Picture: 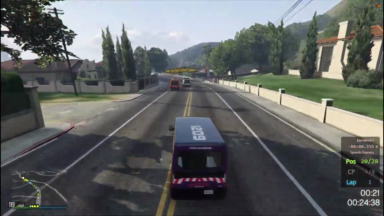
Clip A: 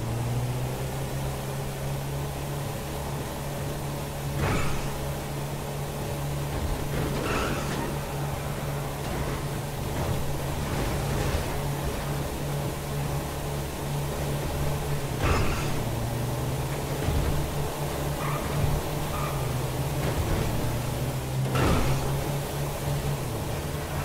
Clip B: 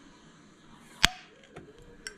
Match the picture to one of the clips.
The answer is A